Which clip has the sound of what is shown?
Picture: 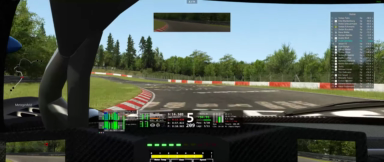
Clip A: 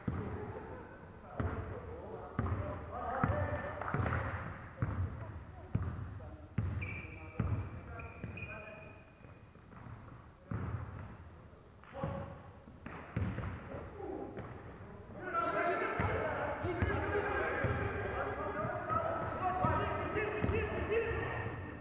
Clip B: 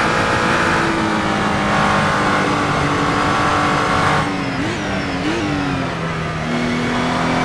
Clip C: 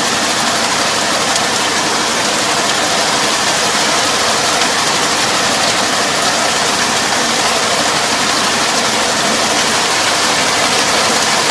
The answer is B